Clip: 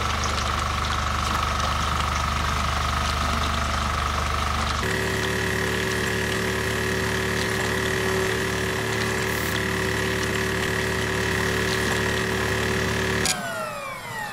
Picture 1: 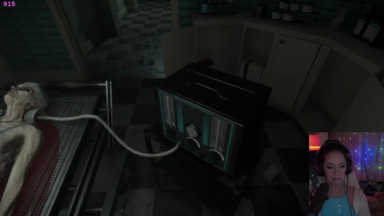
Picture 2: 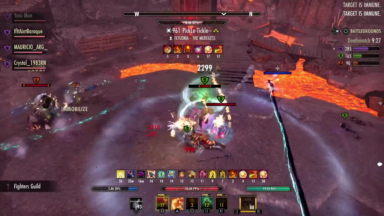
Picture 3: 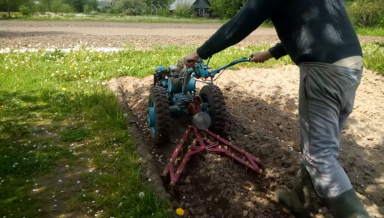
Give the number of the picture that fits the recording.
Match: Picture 1